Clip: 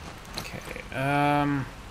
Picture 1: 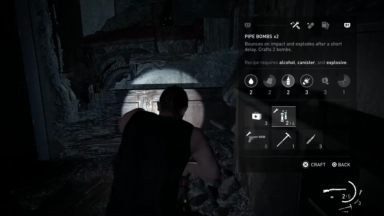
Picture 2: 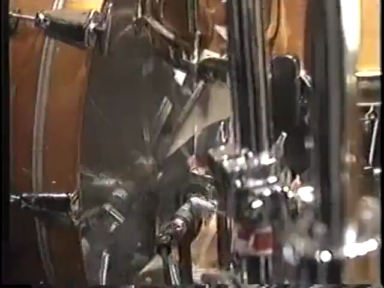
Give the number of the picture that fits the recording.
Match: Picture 1